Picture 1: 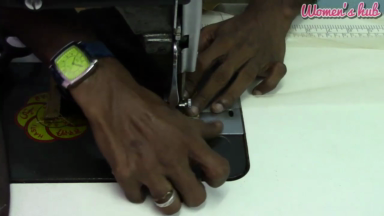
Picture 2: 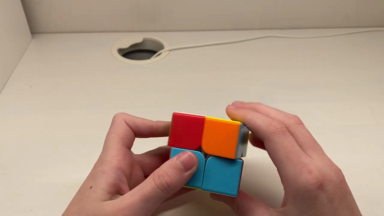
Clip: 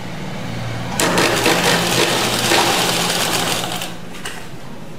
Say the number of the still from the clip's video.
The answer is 1